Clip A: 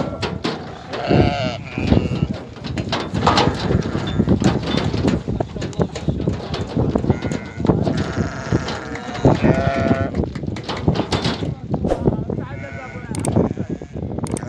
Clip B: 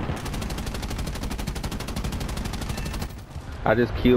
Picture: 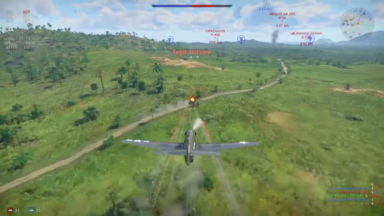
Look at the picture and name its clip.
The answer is B